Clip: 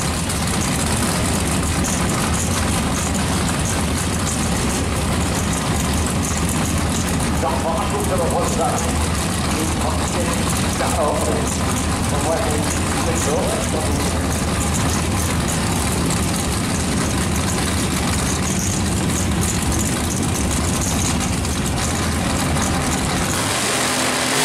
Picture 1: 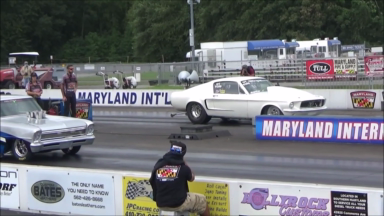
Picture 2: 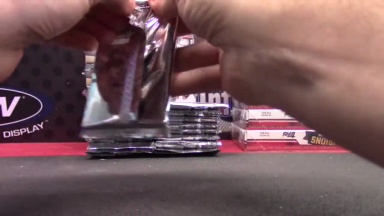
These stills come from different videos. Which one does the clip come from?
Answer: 1